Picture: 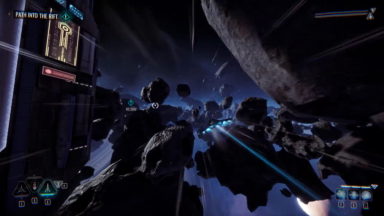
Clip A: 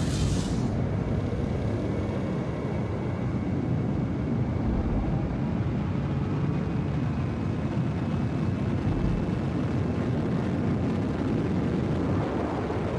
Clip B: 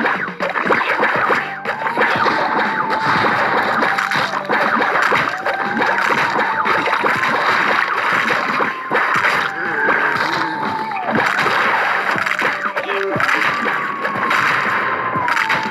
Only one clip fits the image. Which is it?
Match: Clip A